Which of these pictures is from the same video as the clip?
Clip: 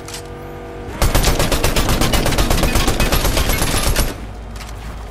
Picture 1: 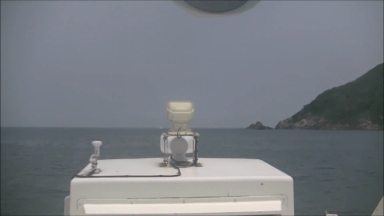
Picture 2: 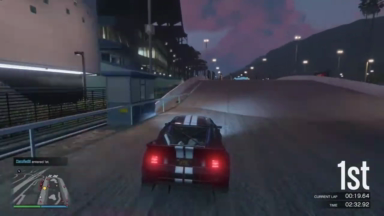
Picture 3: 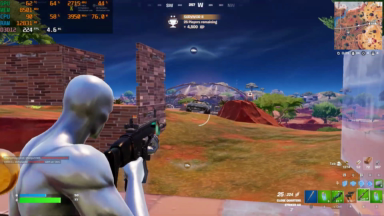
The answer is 3